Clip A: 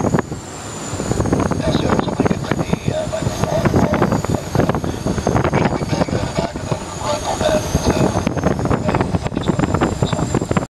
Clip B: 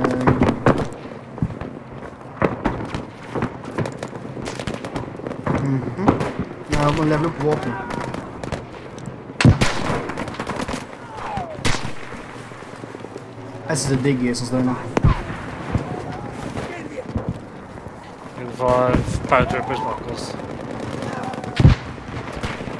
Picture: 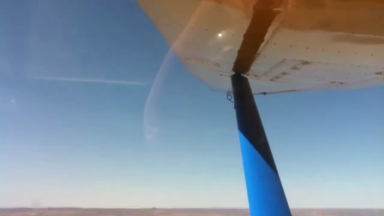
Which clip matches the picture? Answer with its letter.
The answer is A